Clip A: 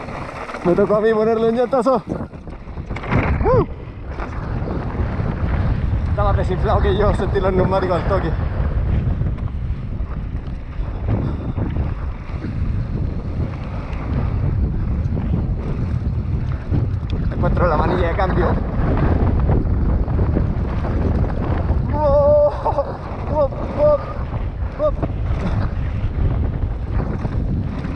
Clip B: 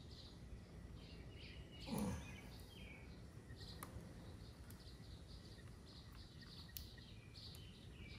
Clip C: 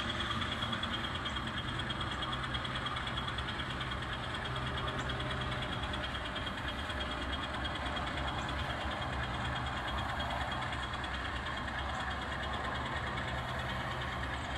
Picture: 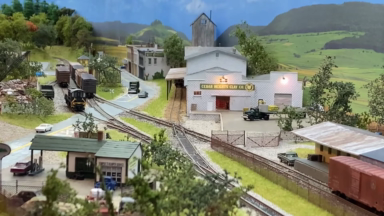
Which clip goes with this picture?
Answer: C